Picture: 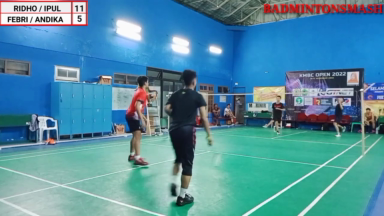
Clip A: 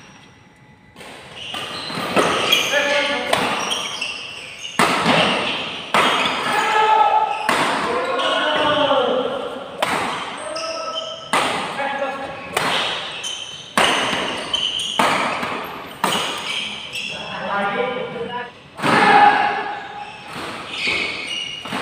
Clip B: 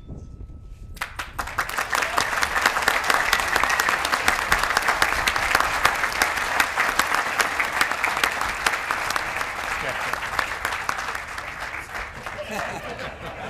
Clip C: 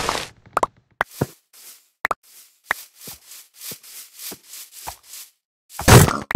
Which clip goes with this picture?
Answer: A